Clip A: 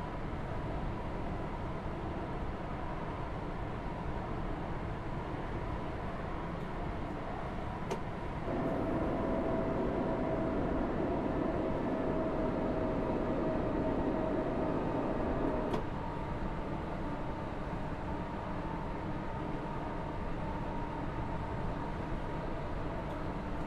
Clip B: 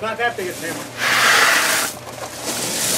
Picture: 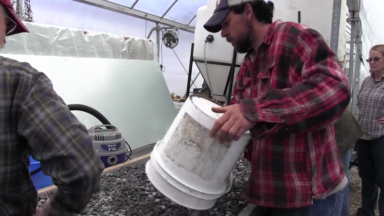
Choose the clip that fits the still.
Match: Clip B